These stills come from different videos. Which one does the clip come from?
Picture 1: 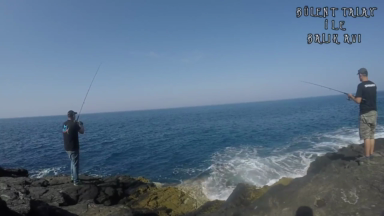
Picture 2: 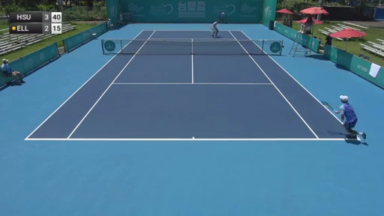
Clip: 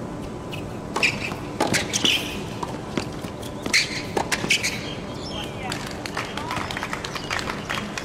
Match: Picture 2